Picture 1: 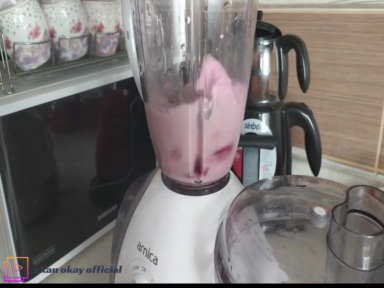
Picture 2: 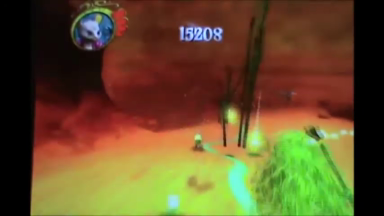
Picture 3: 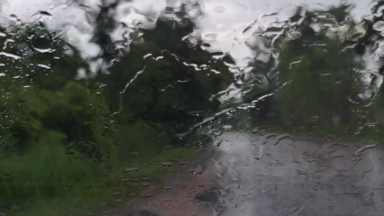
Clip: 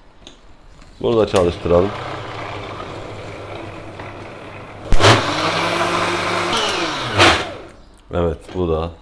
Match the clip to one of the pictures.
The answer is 1